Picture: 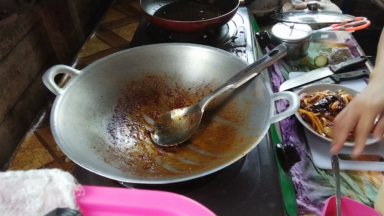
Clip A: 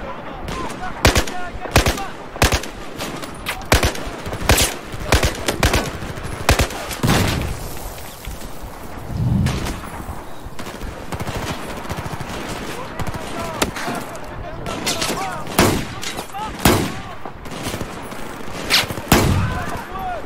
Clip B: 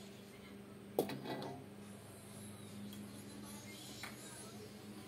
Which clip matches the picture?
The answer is B